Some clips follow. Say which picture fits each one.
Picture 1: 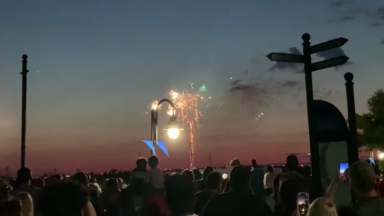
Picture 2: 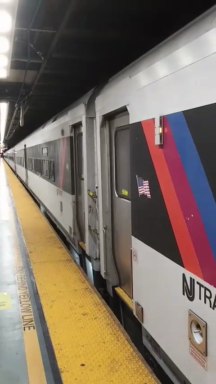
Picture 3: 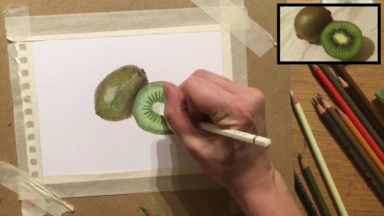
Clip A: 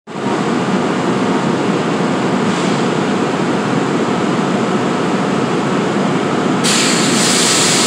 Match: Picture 2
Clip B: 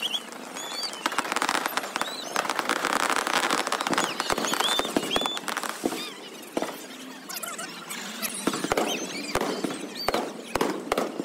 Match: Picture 1